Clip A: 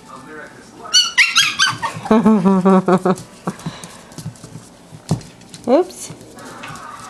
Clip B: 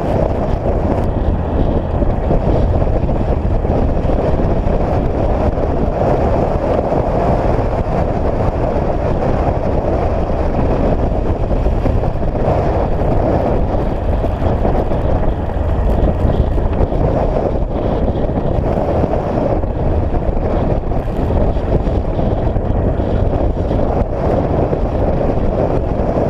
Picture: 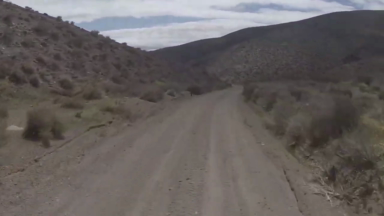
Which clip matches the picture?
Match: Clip B